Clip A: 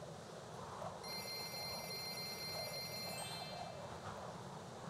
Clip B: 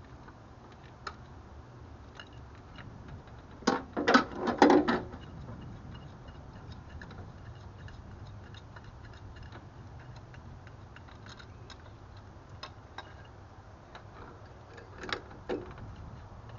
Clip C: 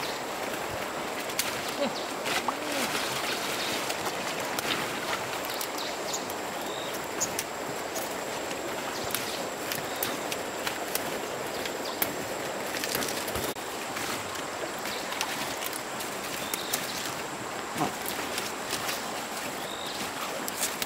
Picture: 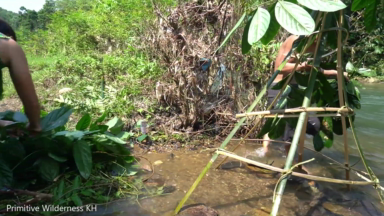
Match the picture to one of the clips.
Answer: C